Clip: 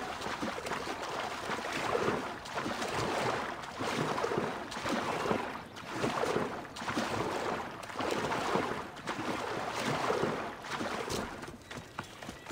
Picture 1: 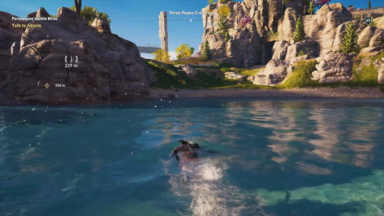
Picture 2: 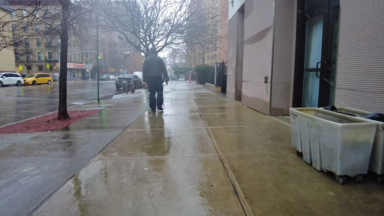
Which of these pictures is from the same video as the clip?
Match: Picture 1